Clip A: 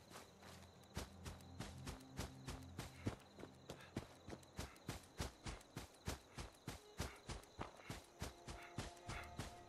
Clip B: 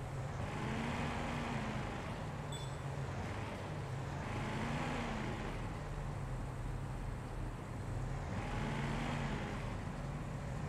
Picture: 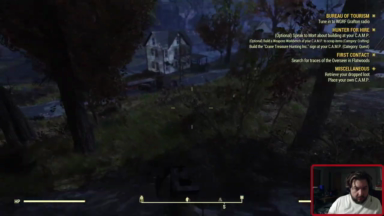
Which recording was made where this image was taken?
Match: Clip A